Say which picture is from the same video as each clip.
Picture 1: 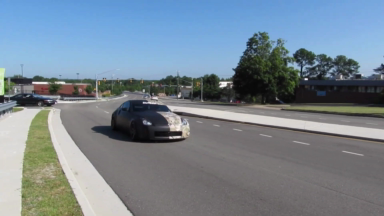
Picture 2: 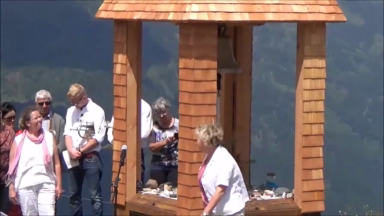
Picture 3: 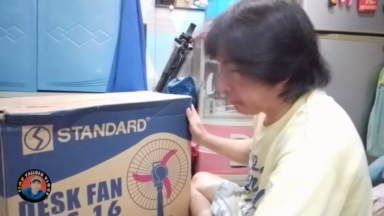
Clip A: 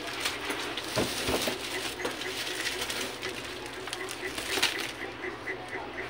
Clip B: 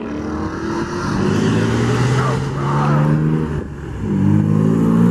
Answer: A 3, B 1